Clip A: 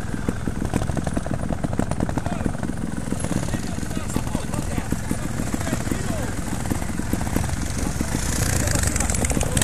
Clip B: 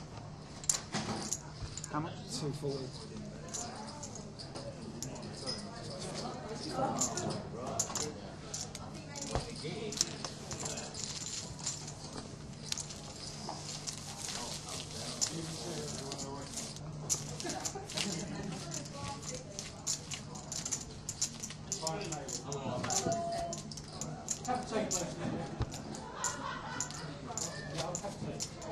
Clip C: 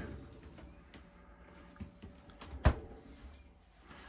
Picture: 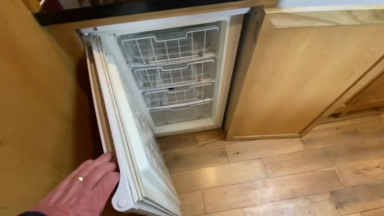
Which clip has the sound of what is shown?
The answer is C